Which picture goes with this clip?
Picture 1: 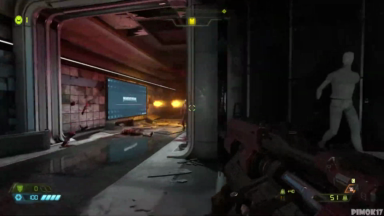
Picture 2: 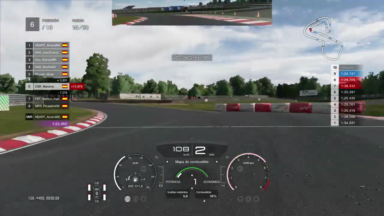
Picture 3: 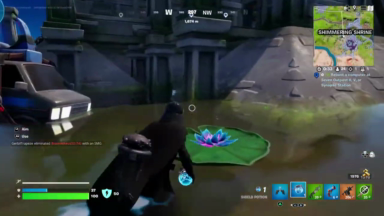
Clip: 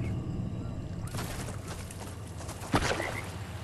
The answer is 3